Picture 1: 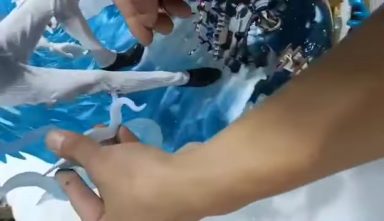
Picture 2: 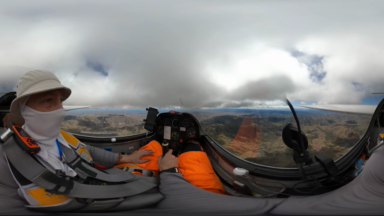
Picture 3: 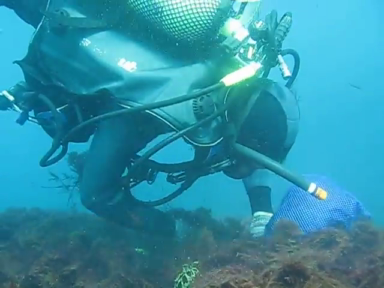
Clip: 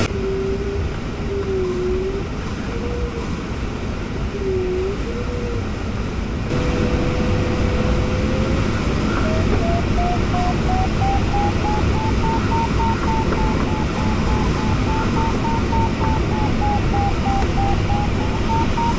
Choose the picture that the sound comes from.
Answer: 2